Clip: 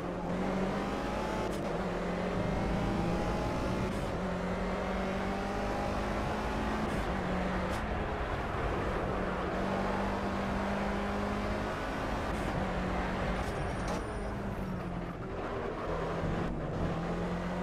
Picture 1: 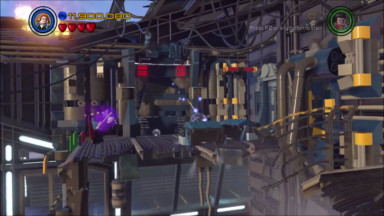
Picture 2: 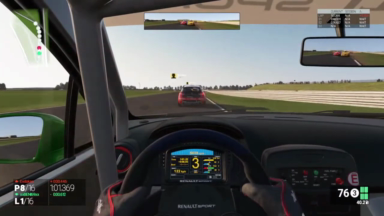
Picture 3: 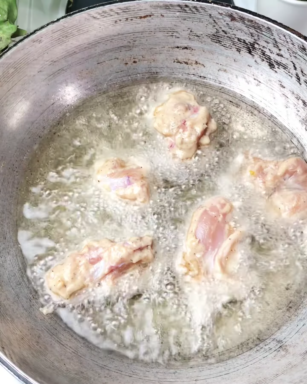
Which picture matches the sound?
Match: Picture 2